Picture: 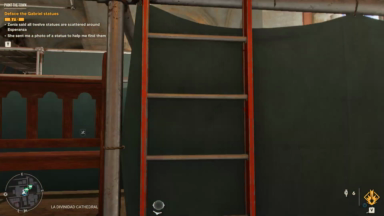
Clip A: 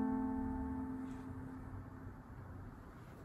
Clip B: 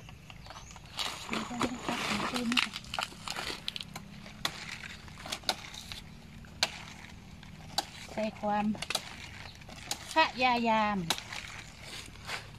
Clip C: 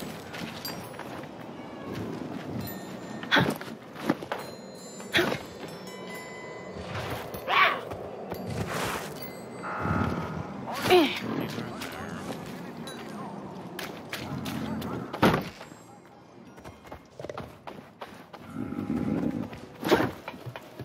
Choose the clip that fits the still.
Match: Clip C